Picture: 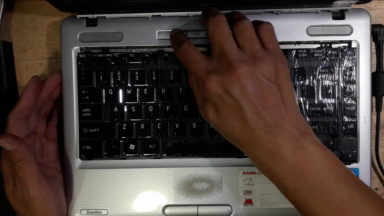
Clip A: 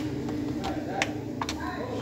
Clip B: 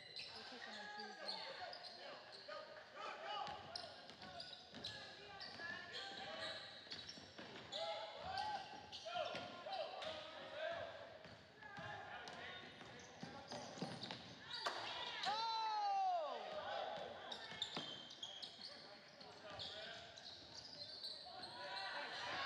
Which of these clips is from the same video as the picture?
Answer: A